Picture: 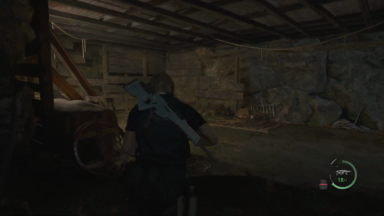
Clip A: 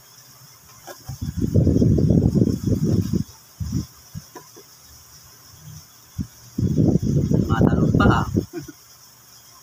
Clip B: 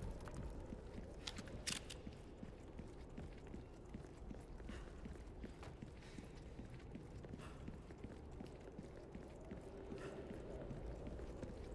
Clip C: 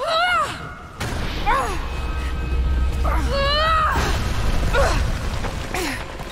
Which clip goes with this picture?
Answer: B